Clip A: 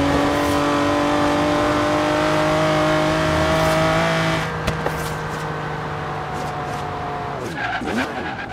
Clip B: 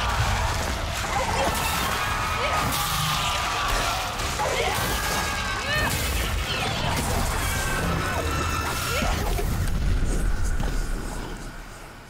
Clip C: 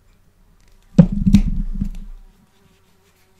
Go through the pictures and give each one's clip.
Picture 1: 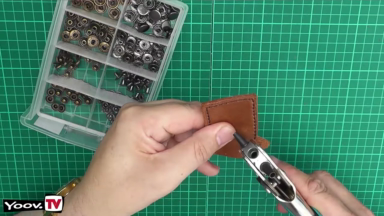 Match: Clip C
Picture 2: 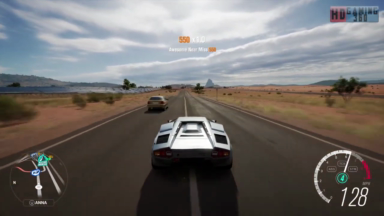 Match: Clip A